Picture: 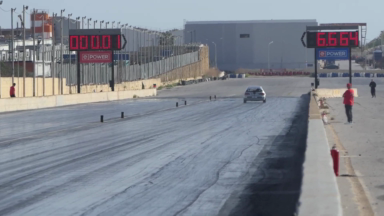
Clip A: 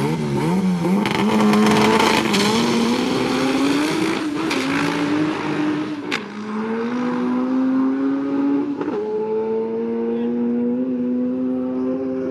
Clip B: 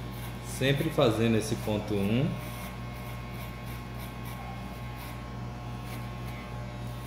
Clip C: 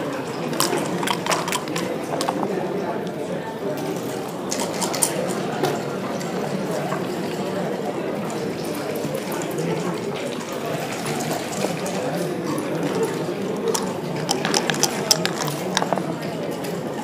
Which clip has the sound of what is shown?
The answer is A